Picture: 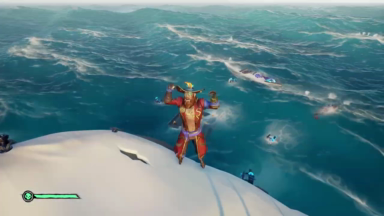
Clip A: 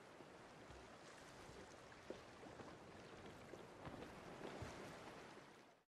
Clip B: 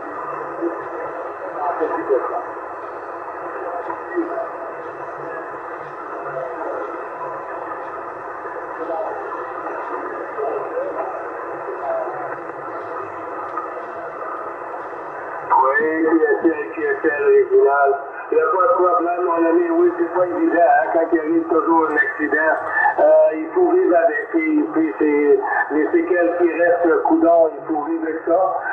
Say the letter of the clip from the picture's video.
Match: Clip A